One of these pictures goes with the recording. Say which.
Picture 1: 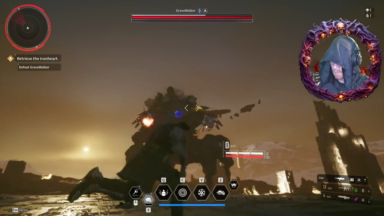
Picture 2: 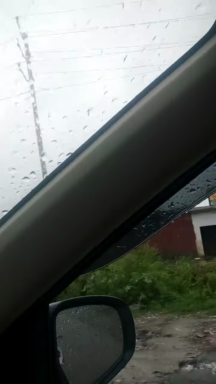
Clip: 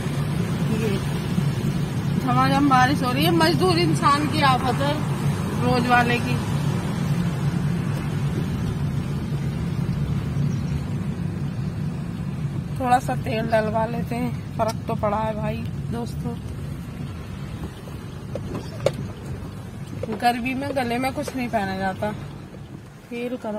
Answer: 2